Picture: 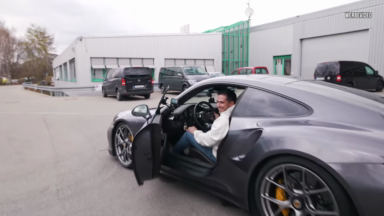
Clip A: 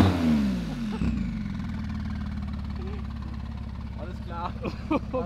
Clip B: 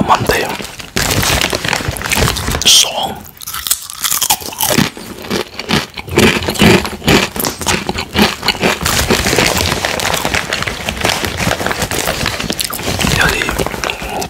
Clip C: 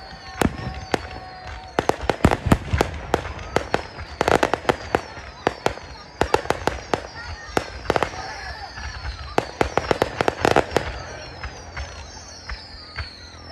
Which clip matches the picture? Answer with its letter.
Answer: A